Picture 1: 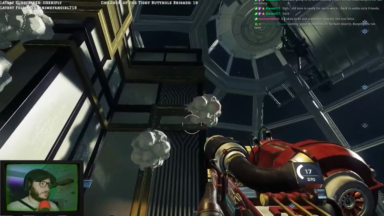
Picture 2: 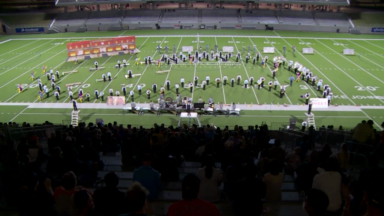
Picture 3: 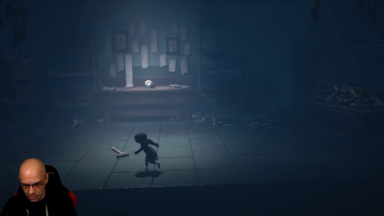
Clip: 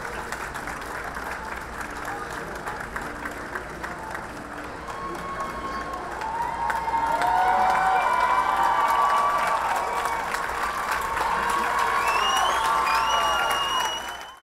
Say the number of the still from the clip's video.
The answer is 2